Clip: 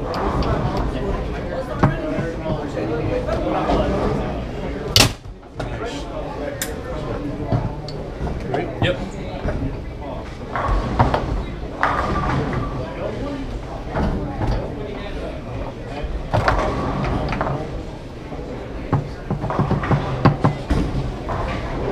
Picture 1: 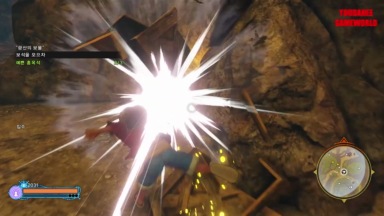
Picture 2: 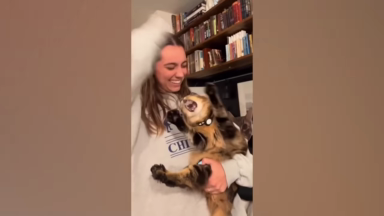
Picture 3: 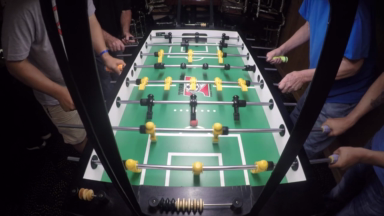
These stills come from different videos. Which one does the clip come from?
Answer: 3